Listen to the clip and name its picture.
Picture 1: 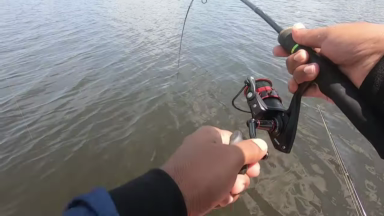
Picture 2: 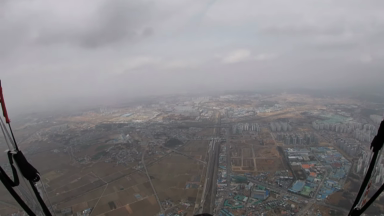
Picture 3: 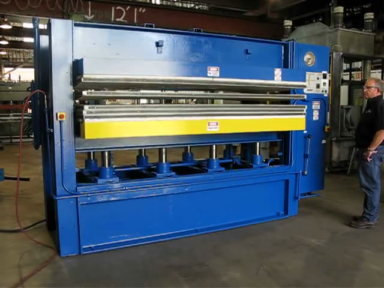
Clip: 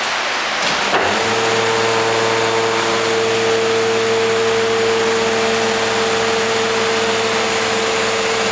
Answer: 3